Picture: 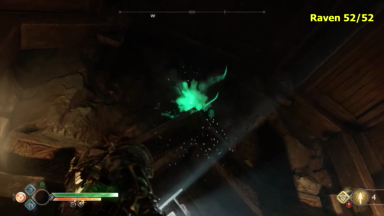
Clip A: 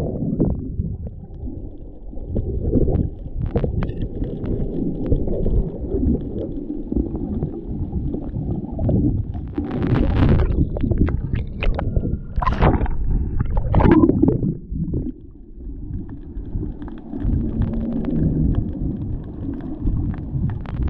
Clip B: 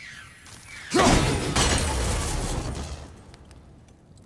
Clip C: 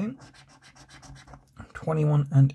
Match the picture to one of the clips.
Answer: B